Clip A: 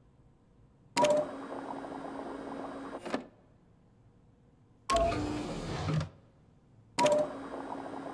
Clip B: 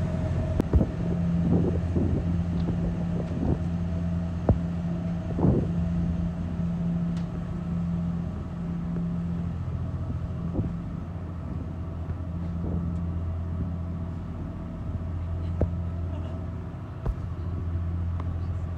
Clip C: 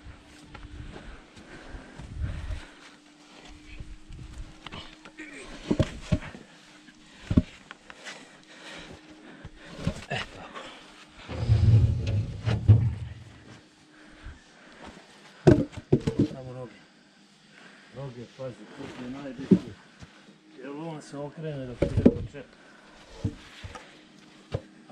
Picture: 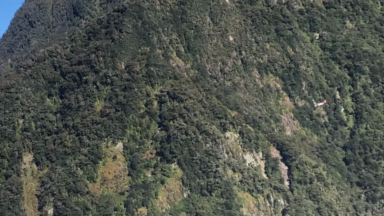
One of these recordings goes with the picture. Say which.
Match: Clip B